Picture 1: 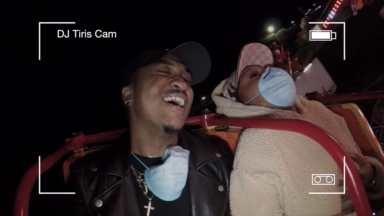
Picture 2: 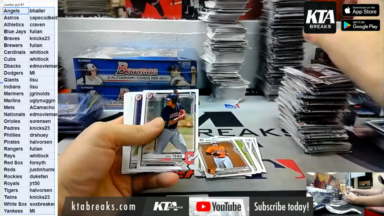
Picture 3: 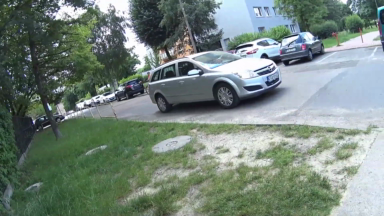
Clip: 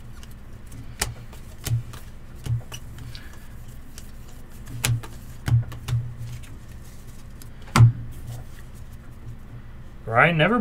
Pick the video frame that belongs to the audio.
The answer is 2